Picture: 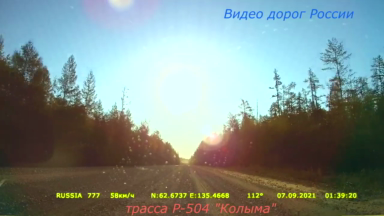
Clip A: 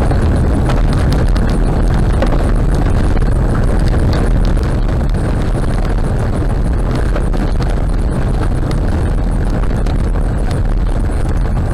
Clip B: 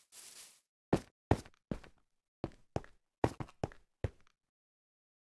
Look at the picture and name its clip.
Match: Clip A